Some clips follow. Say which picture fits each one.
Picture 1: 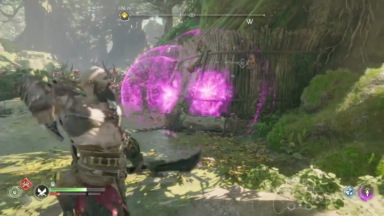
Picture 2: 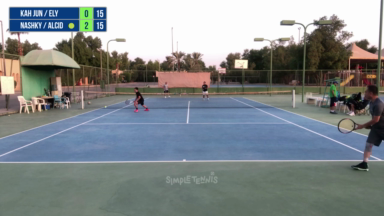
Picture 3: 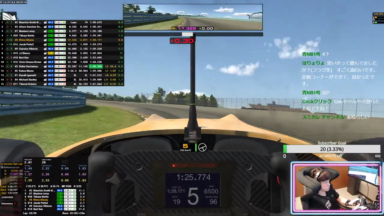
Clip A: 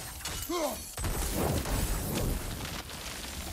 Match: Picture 1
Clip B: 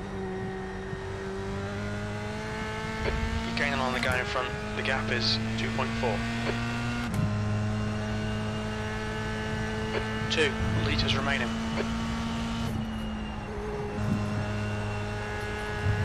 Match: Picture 3